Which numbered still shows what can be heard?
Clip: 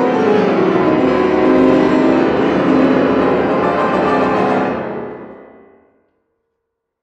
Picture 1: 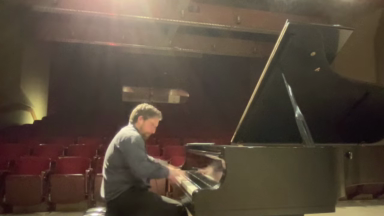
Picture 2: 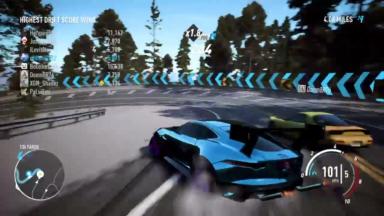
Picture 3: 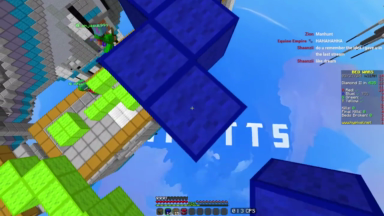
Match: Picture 1